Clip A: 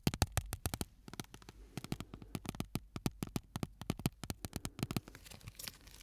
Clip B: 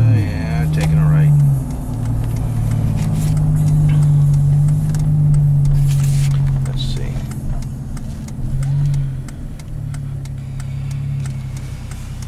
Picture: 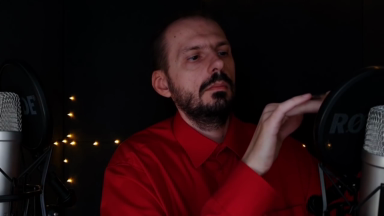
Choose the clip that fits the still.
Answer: A